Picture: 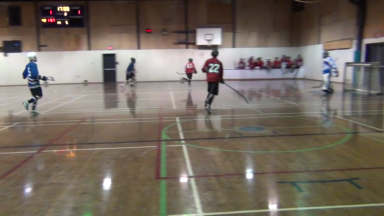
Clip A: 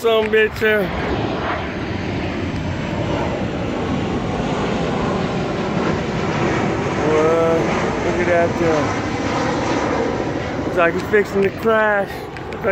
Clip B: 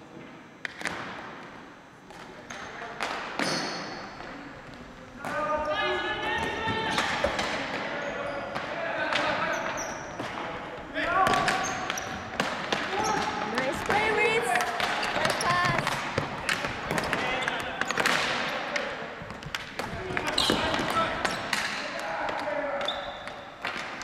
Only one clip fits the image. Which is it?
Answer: B